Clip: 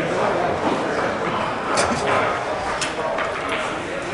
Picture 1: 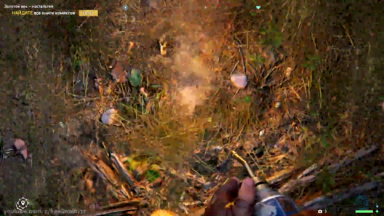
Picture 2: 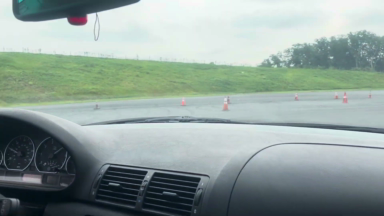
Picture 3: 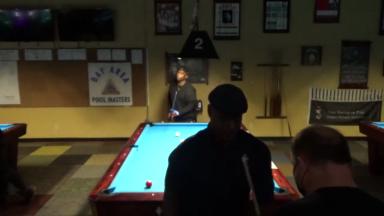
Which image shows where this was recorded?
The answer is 3